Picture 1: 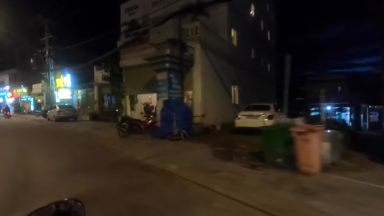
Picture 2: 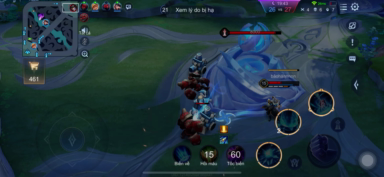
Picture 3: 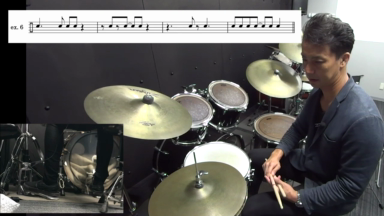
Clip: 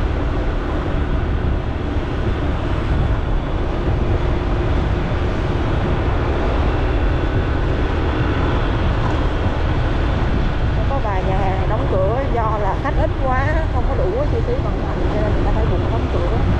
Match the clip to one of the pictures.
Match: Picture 1